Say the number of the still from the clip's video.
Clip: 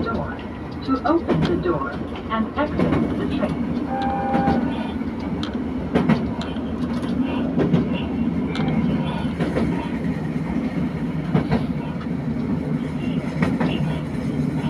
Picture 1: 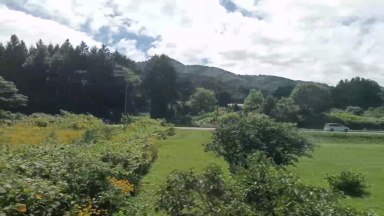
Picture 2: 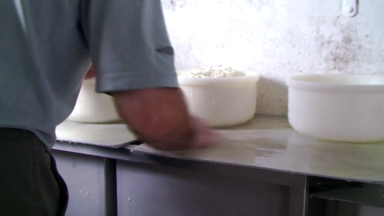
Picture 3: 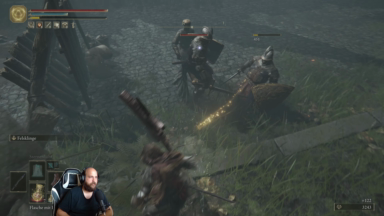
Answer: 1